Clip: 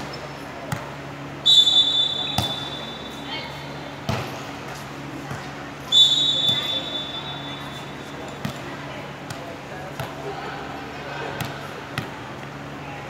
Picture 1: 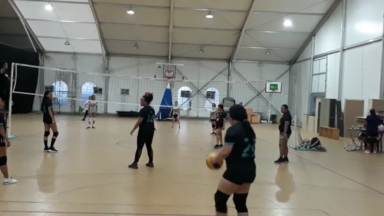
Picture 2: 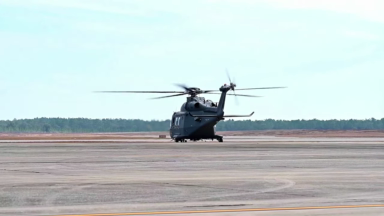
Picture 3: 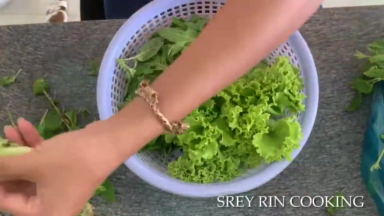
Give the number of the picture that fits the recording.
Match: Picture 1